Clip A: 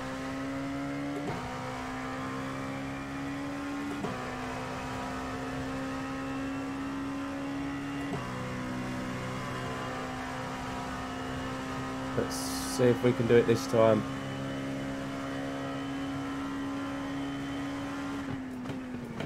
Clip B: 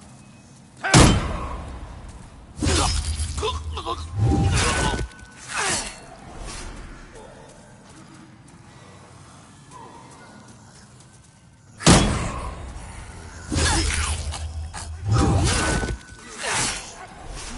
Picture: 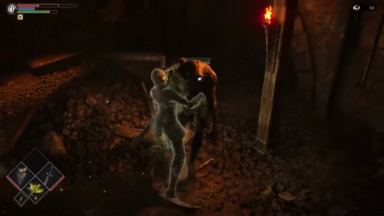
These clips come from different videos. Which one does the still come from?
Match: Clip B